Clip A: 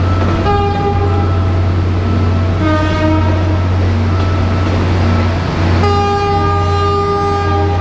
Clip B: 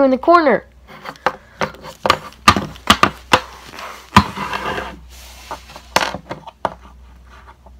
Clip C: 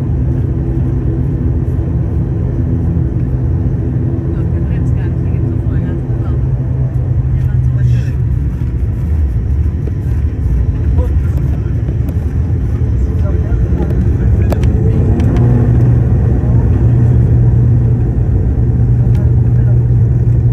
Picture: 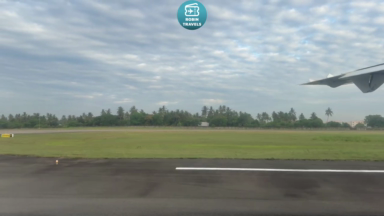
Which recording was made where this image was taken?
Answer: C